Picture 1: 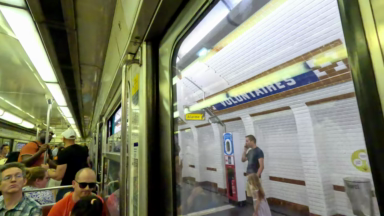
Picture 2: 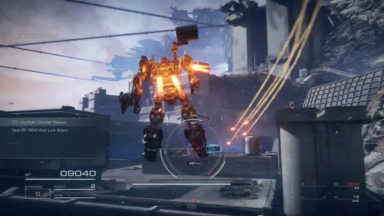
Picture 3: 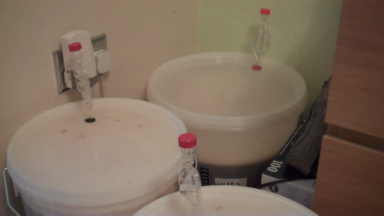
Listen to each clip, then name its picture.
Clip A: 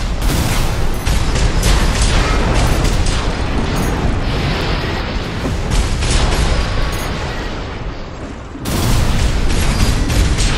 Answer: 2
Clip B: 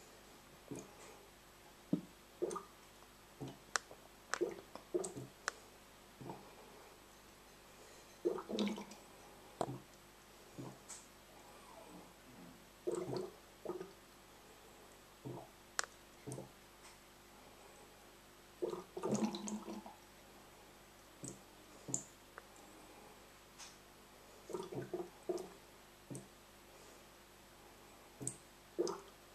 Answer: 3